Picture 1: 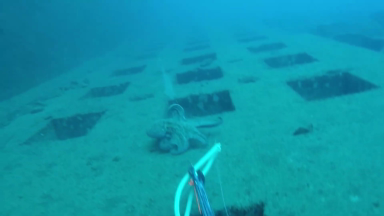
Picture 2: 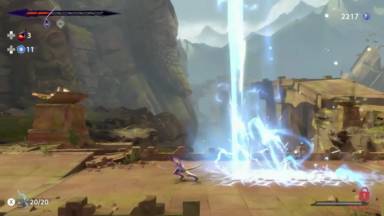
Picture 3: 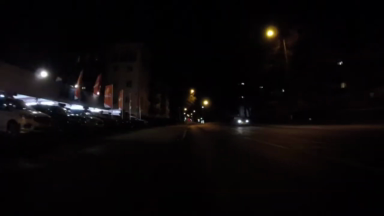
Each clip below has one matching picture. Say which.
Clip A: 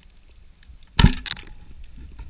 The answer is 1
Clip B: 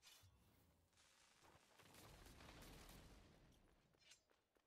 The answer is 2